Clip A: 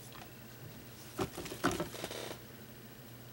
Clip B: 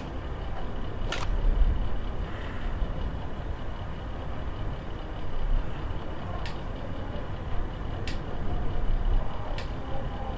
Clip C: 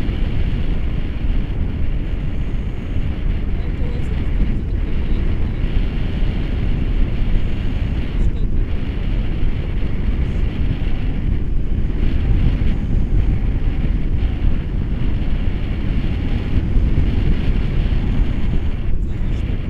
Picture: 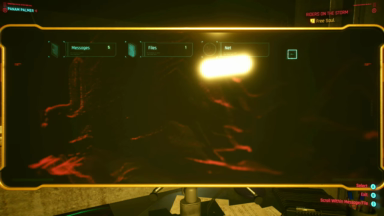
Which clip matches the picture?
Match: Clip B